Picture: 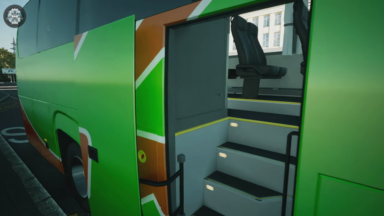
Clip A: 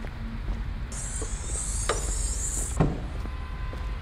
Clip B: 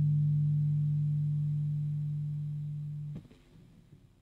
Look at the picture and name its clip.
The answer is A